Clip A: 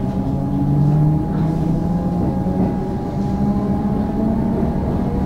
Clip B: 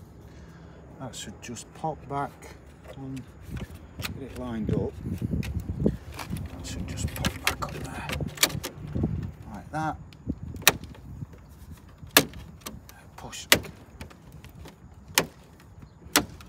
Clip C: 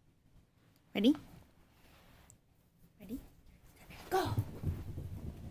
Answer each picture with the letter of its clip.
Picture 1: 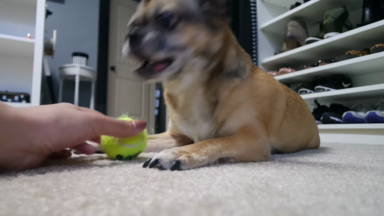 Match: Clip C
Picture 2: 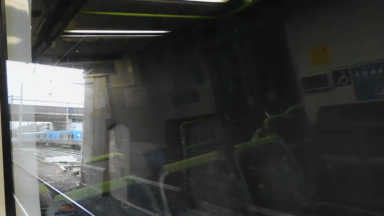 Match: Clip A